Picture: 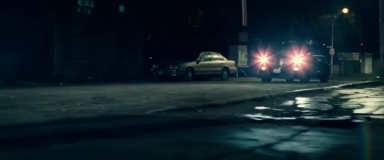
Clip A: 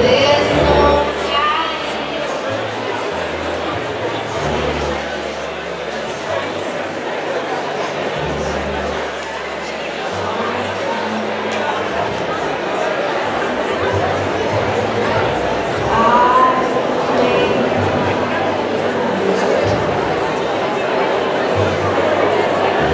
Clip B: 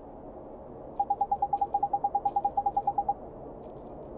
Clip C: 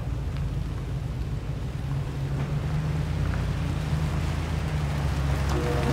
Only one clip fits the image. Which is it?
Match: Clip C